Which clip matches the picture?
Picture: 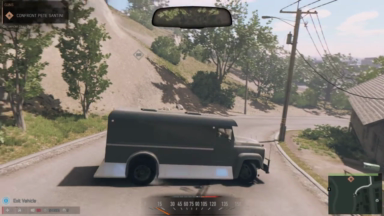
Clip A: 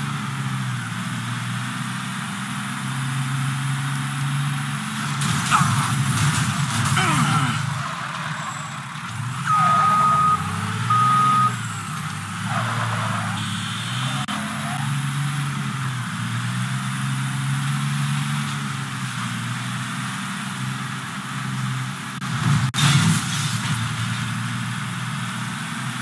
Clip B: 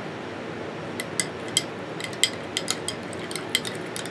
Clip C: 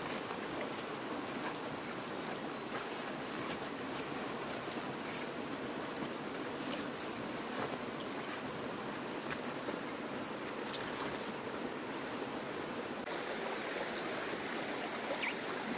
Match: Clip A